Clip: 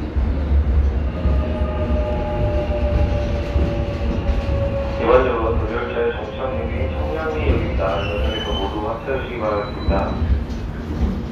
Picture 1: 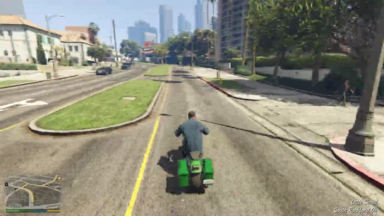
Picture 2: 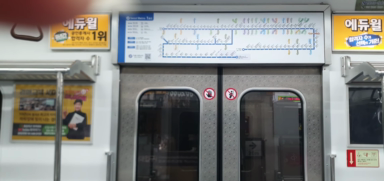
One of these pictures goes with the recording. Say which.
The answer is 2